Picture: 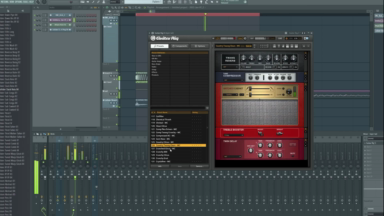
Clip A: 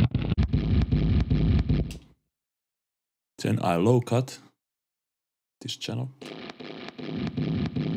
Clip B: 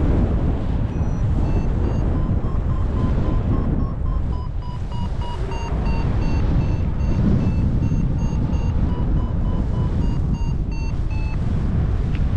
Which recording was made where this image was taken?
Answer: A